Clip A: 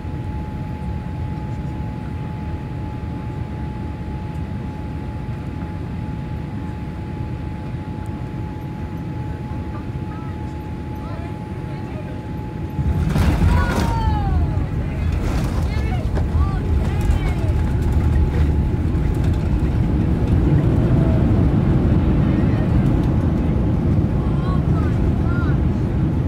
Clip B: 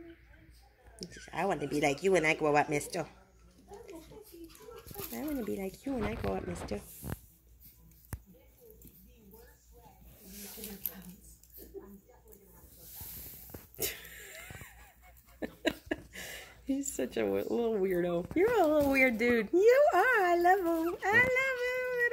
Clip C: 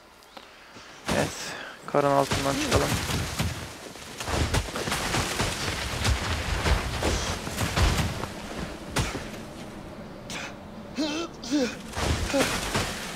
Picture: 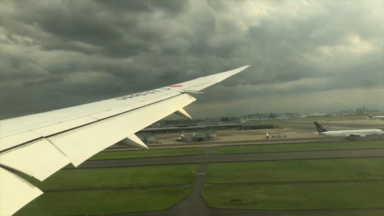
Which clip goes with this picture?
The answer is A